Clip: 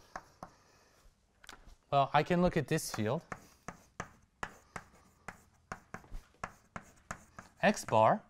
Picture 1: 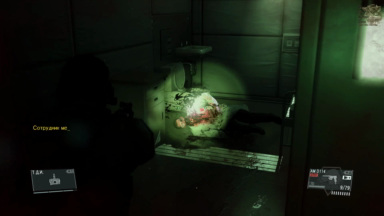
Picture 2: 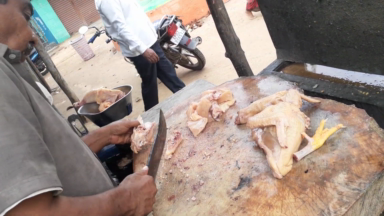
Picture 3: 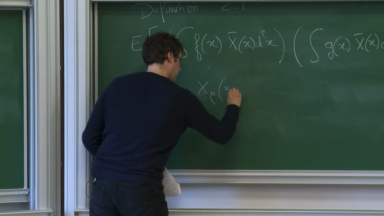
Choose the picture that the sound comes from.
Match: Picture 3